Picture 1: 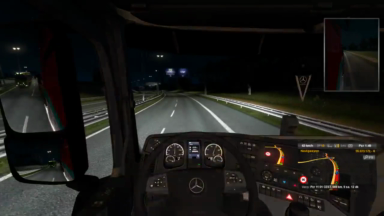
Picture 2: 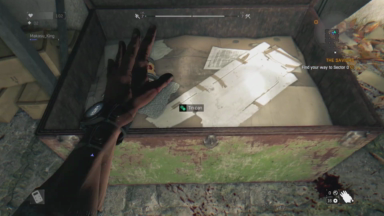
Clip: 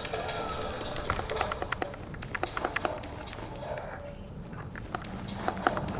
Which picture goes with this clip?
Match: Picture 2